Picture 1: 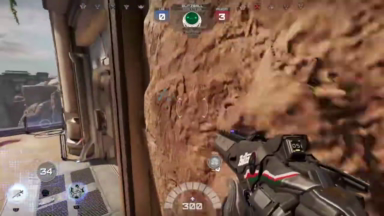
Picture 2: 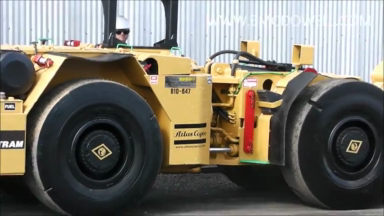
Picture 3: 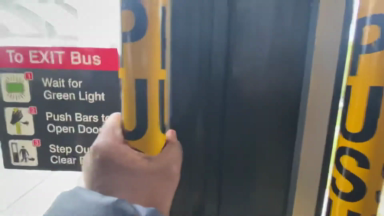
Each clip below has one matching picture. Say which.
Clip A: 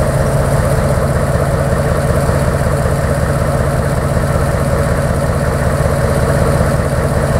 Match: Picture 2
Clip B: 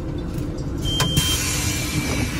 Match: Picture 3